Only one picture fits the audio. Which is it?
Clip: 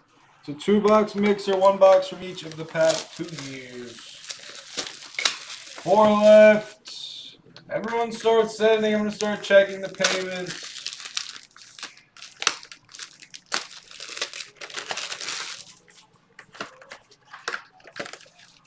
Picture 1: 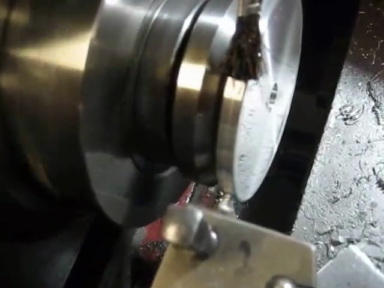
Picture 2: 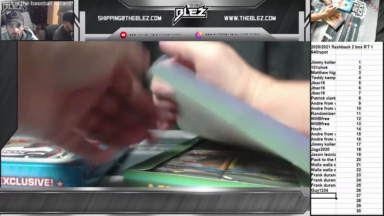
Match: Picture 2